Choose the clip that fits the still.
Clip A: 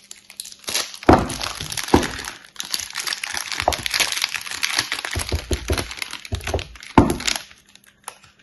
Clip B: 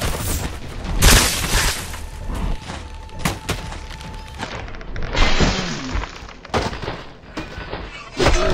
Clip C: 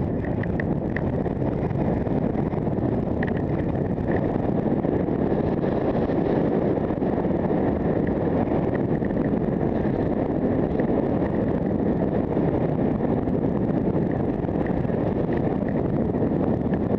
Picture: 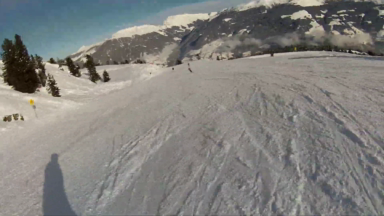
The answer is C